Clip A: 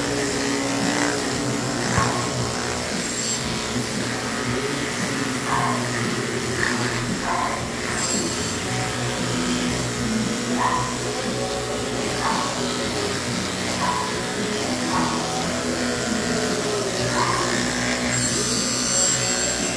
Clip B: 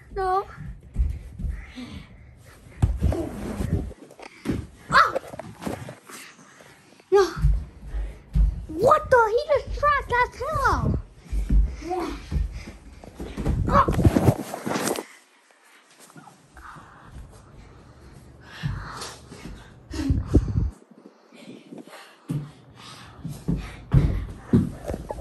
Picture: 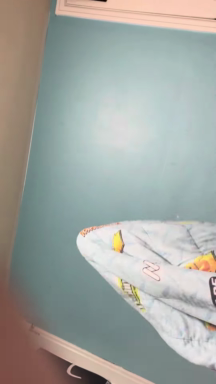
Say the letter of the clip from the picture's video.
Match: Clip B